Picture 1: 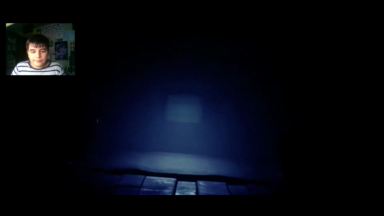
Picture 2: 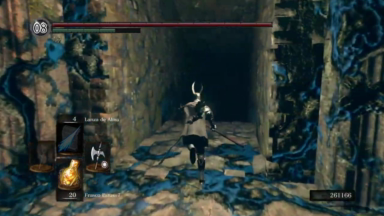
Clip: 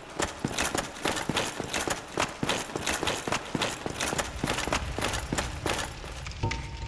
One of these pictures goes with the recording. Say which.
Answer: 2